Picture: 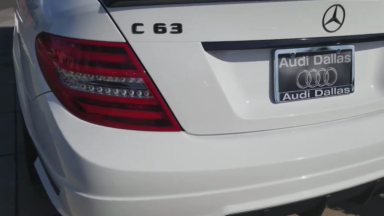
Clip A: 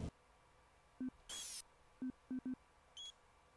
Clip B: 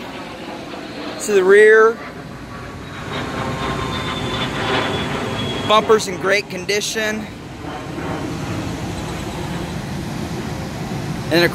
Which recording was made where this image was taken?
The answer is B